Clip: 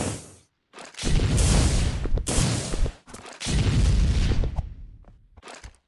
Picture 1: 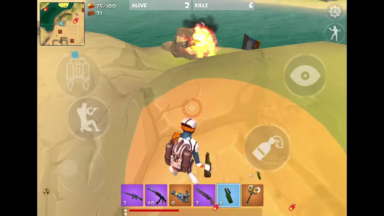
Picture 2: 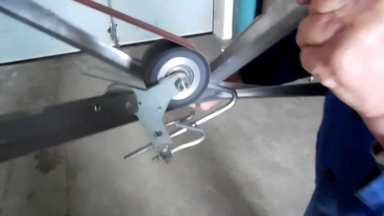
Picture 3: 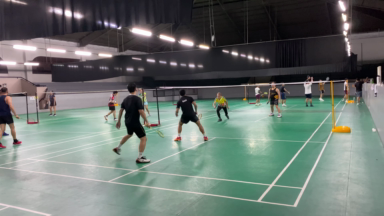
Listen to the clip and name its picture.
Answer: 1